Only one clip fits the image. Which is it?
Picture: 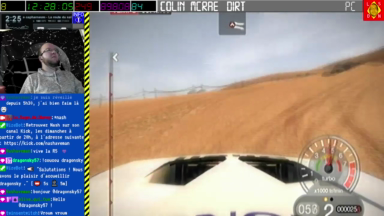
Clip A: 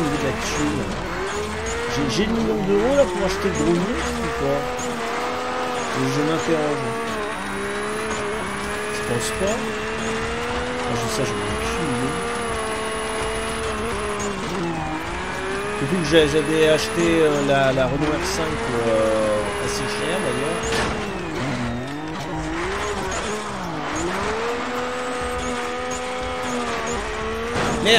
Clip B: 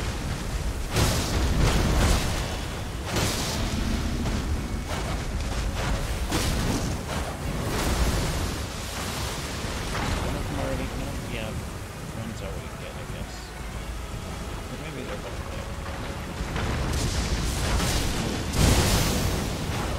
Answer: A